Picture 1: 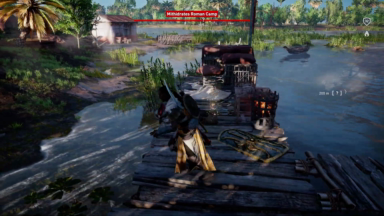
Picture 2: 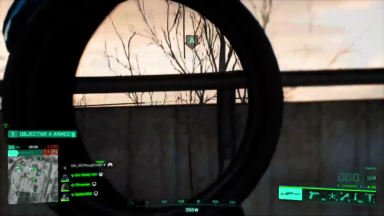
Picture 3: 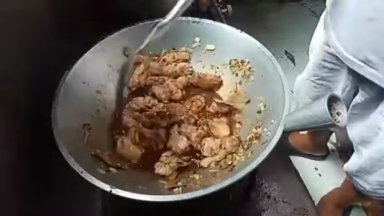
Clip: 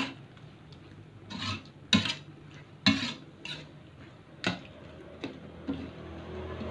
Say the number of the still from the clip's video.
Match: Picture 3